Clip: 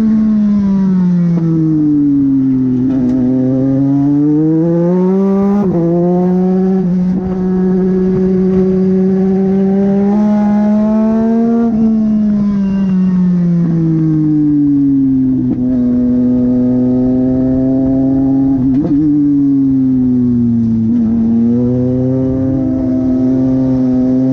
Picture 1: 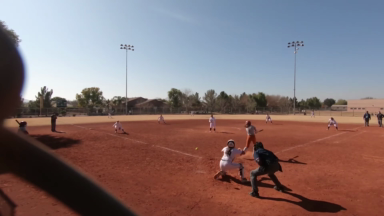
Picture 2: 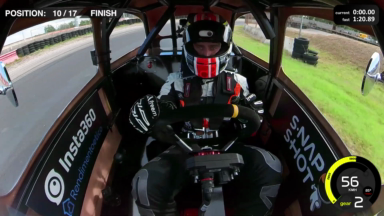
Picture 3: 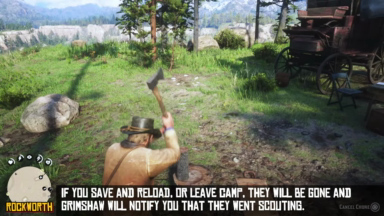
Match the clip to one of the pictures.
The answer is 2